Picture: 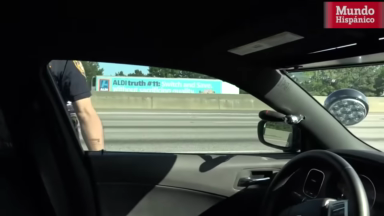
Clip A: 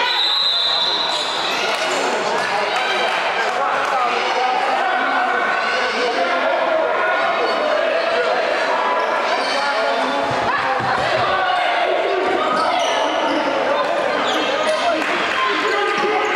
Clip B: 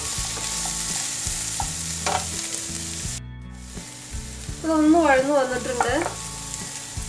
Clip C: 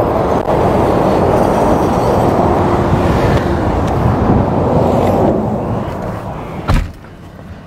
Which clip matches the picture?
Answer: C